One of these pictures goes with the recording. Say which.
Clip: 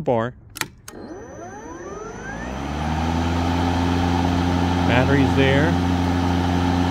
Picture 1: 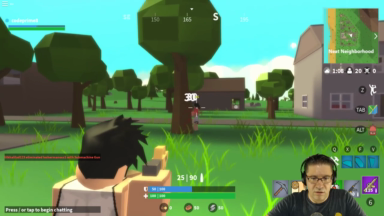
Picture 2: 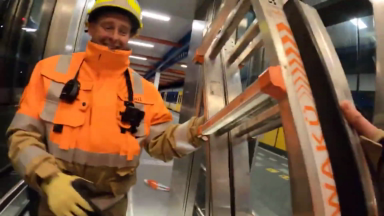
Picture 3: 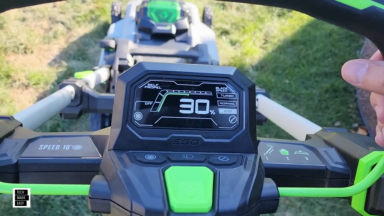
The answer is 3